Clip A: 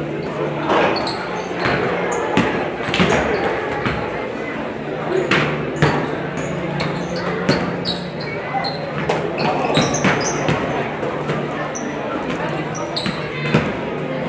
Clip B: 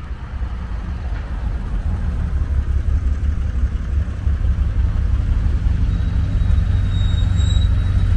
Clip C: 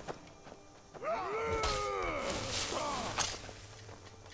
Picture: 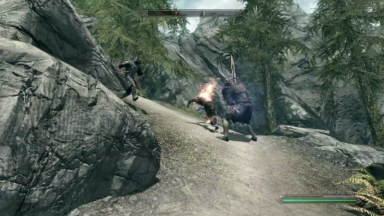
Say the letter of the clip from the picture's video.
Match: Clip C